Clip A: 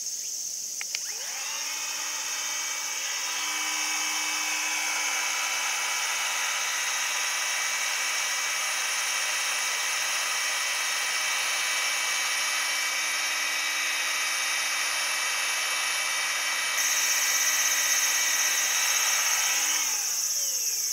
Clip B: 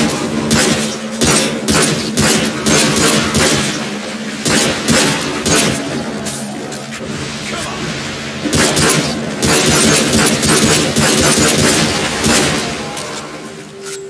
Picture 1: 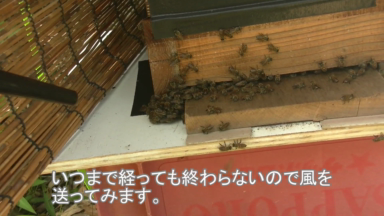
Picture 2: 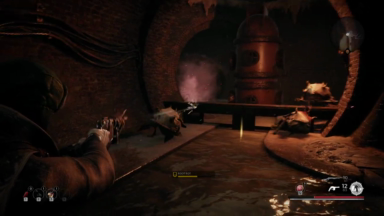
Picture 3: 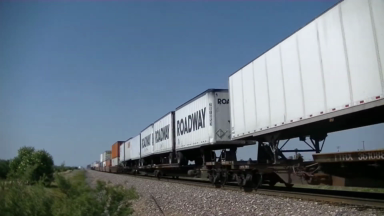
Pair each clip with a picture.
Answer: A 1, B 2